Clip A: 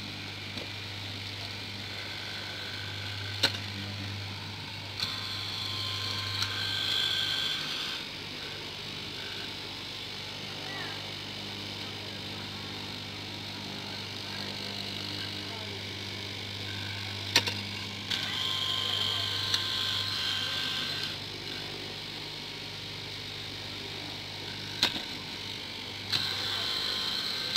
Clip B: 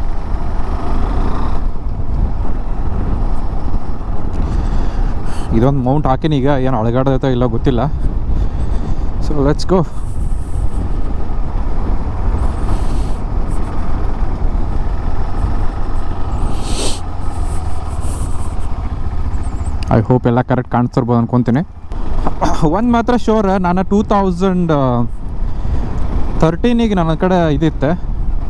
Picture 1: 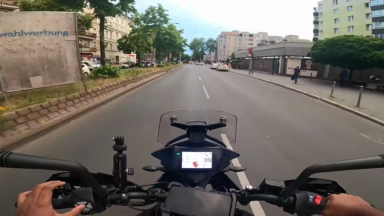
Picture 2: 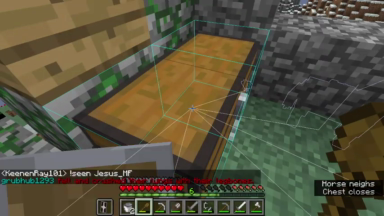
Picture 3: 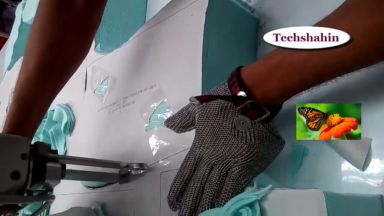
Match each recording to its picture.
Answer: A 3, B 1